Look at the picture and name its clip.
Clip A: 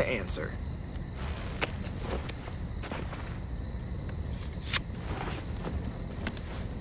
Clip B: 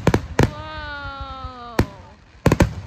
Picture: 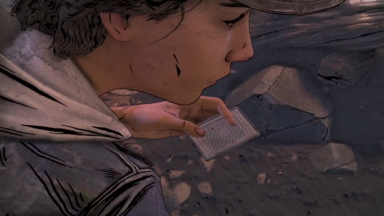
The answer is A